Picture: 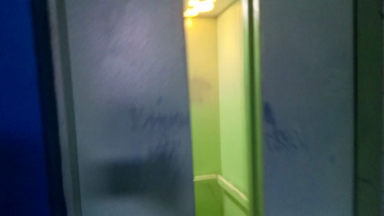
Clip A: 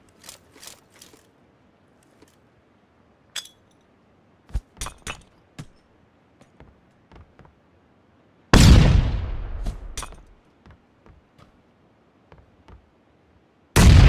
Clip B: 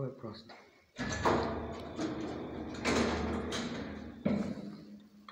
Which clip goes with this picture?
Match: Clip B